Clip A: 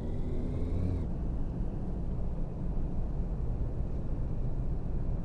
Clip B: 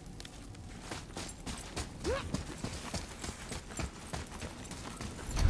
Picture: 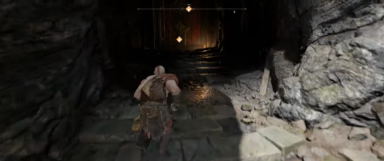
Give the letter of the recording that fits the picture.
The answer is B